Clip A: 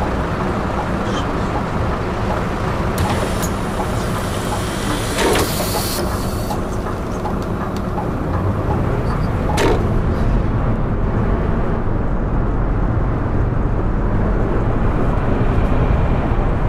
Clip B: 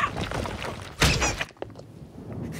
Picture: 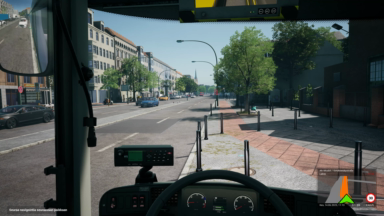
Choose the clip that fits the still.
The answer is A